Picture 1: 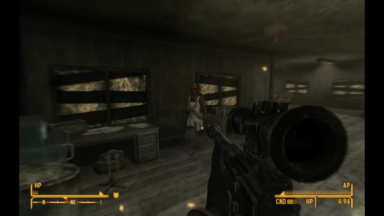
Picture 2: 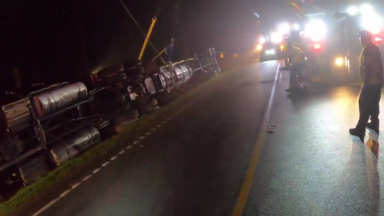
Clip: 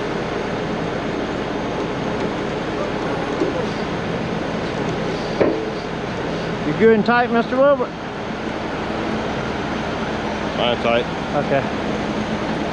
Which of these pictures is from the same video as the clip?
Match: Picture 2